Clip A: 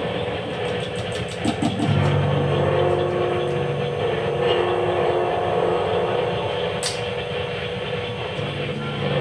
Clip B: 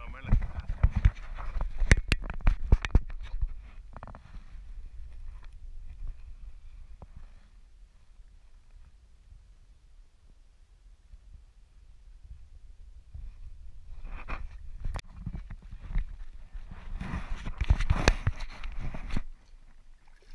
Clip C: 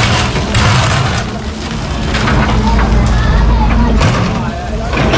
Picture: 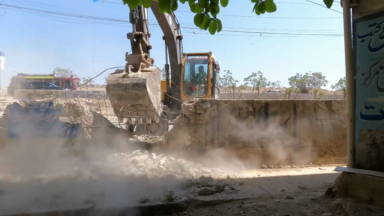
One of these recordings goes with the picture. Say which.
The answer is C